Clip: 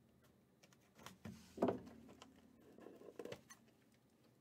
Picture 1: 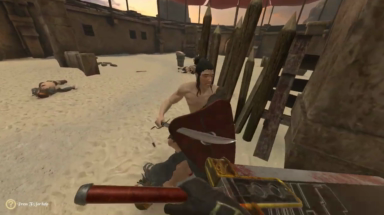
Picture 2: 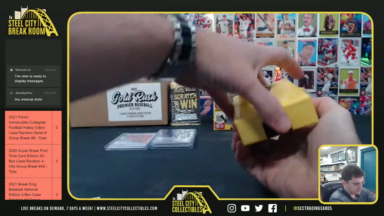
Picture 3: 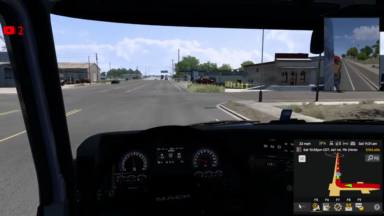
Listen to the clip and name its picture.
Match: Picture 2